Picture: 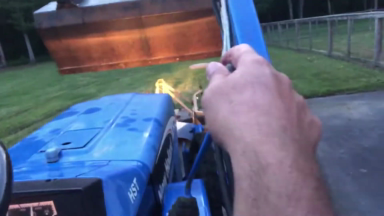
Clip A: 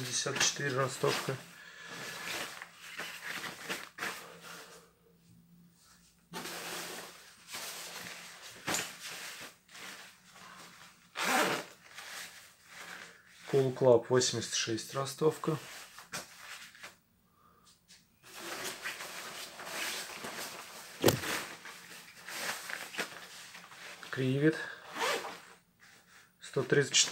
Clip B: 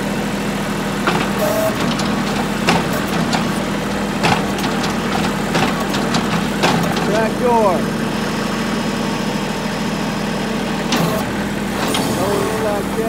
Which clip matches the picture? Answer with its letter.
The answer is B